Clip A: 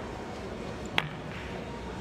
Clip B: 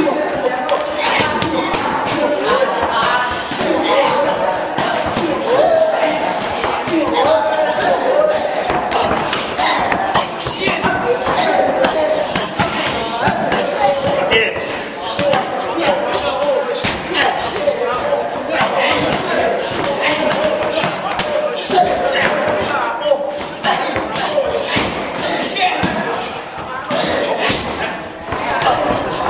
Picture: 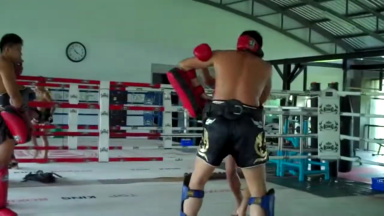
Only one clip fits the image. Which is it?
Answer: B